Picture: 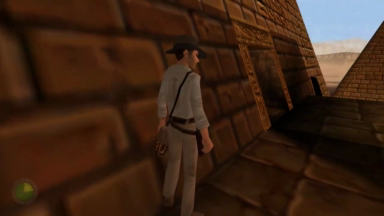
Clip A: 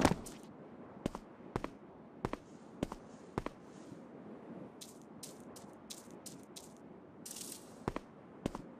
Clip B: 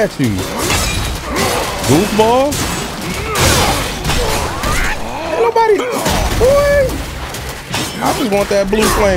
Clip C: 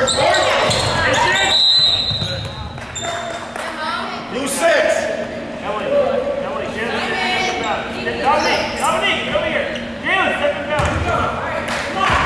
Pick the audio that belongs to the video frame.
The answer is A